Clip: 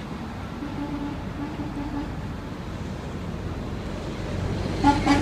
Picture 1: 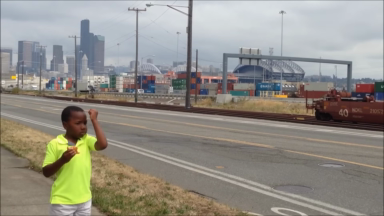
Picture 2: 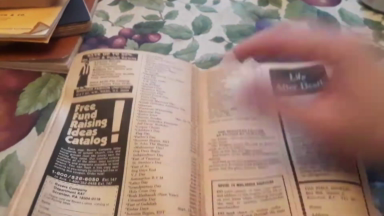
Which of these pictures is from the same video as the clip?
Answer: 1